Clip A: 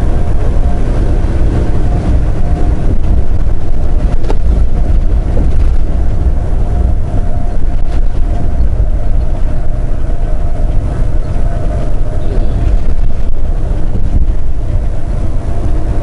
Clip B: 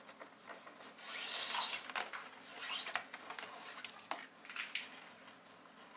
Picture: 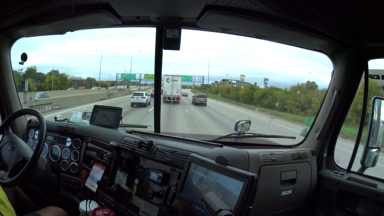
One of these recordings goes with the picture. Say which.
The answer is A